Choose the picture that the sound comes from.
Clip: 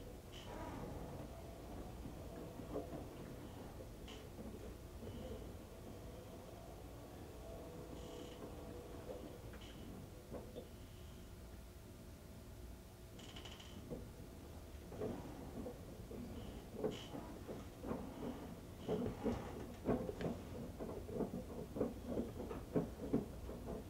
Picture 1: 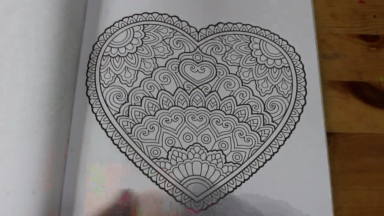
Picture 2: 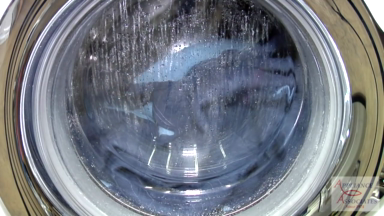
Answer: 2